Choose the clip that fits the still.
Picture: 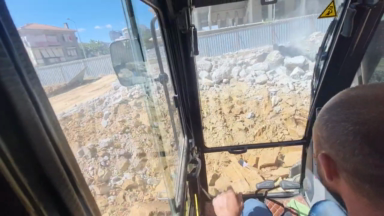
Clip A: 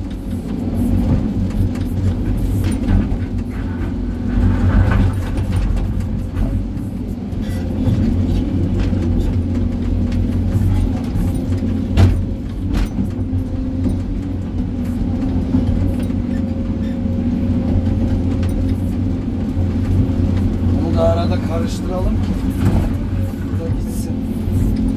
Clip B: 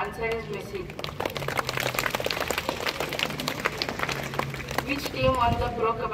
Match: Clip A